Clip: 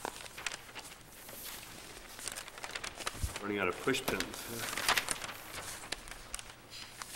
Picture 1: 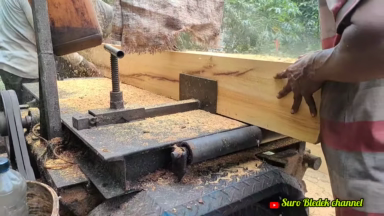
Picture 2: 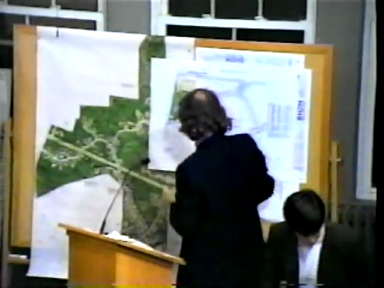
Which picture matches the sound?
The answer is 2